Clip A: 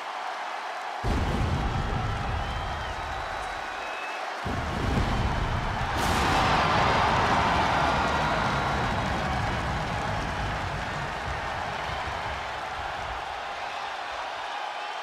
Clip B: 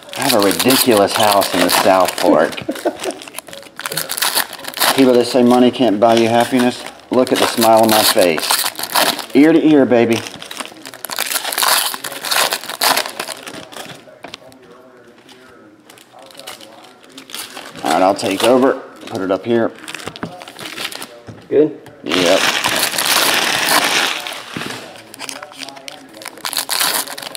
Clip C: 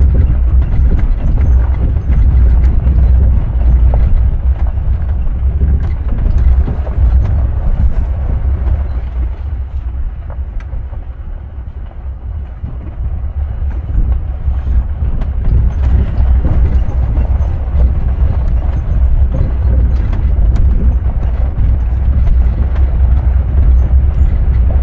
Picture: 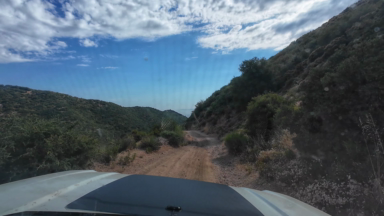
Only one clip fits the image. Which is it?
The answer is C